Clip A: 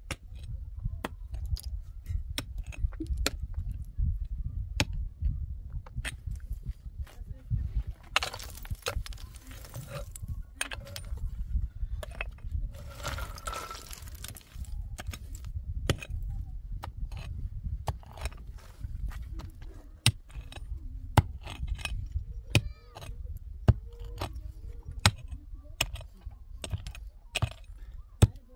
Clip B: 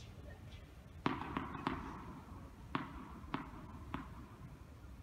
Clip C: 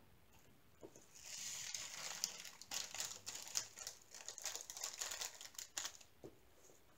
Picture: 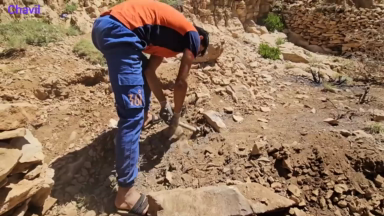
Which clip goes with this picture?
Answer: A